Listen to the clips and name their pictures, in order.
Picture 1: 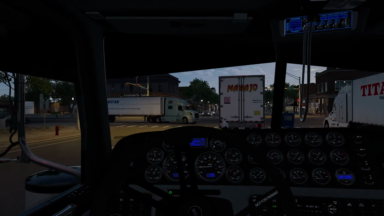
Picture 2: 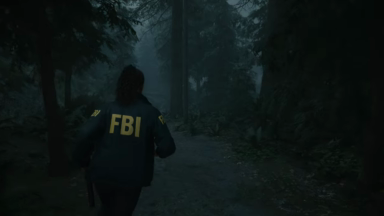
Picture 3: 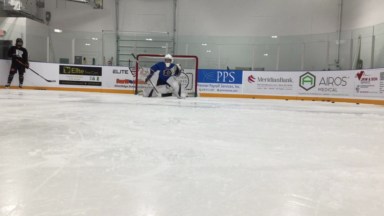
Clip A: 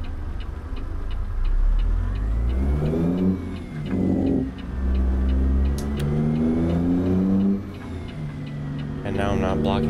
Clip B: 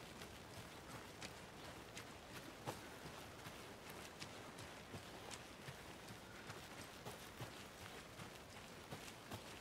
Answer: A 1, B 2